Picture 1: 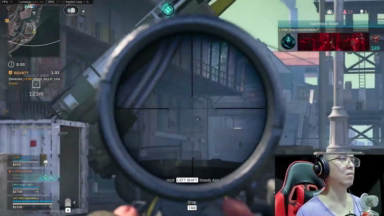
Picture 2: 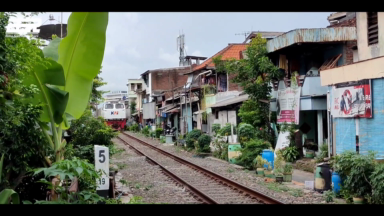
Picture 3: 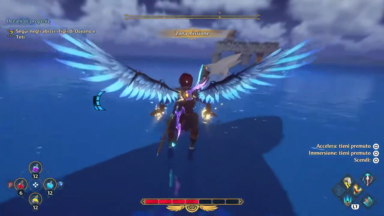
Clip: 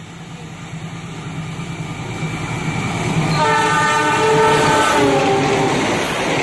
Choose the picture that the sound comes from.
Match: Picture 2